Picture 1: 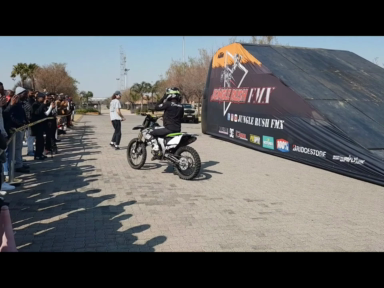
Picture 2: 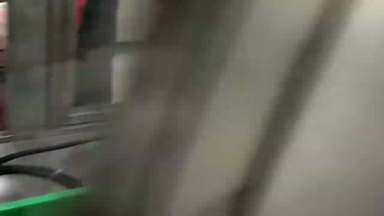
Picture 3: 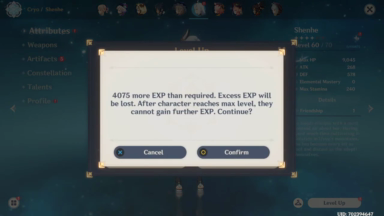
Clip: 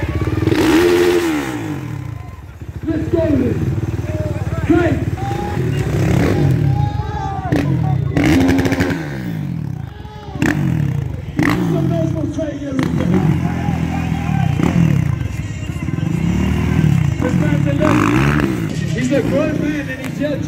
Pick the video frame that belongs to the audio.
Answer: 1